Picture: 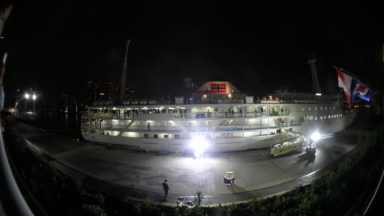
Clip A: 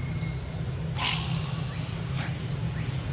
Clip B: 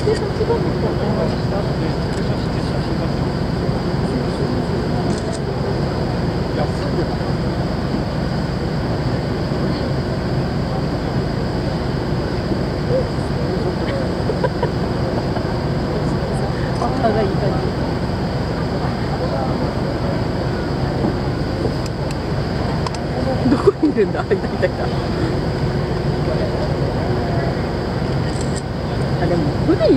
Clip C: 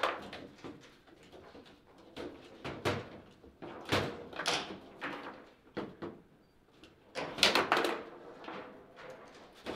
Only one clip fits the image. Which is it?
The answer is B